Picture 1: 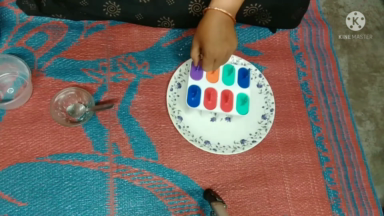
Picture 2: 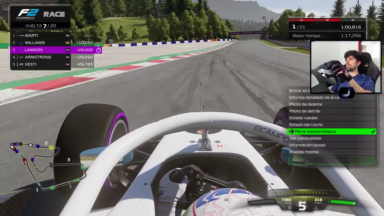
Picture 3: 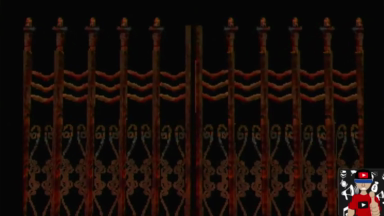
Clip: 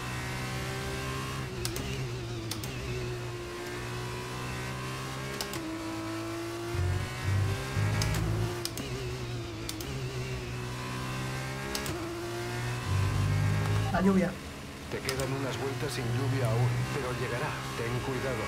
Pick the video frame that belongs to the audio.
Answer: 2